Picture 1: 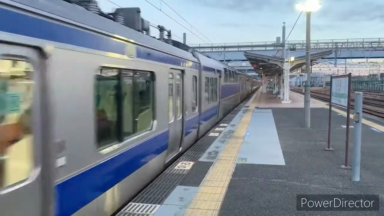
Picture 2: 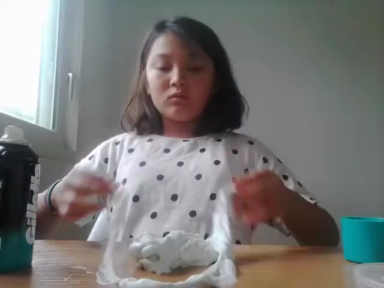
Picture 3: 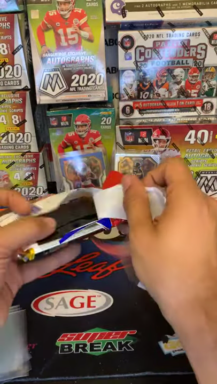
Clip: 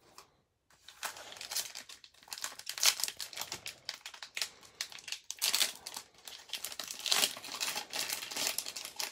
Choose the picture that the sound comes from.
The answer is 3